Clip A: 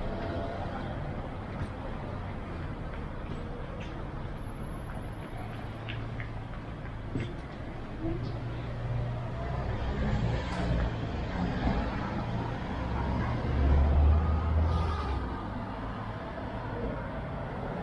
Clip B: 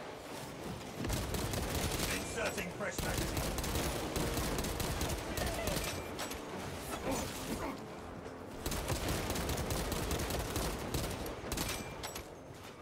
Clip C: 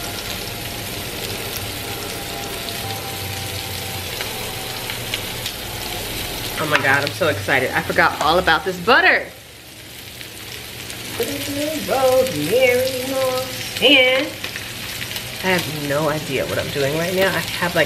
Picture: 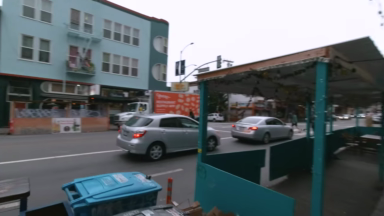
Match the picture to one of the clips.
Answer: A